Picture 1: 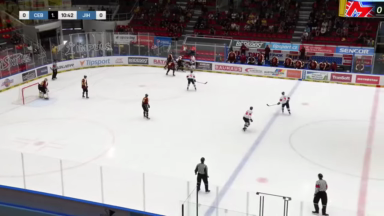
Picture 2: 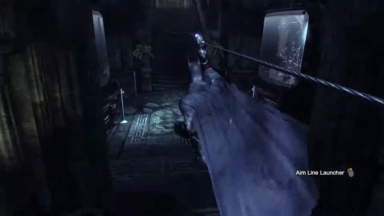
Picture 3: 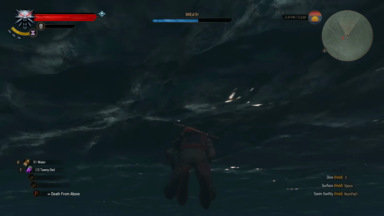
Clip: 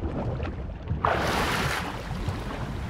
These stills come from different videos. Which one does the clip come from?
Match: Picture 3